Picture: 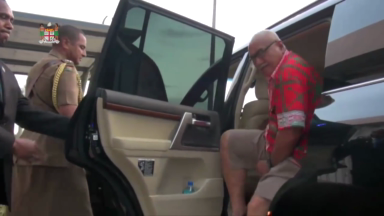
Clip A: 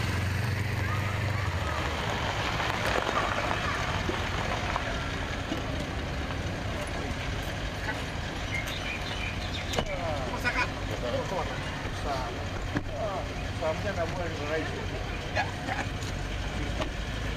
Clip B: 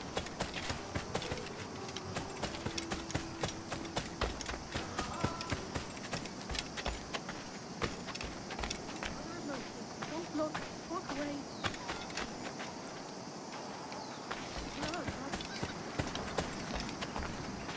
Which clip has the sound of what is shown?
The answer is A